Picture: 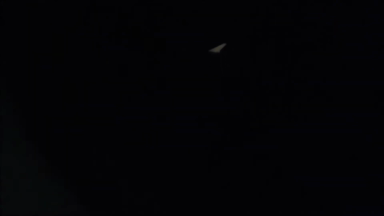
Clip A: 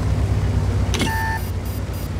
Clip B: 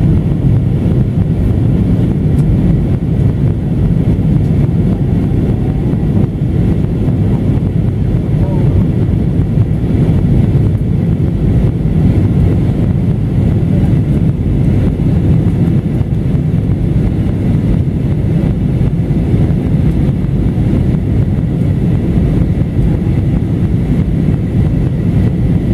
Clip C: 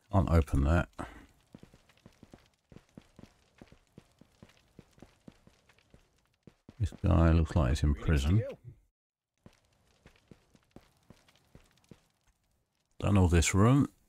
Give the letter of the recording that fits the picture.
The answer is B